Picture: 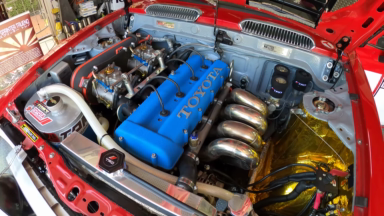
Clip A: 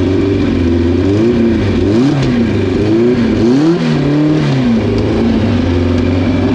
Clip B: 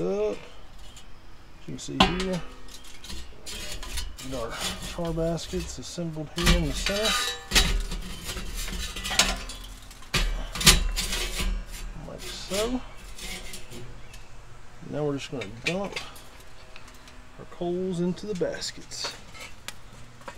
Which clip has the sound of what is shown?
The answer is A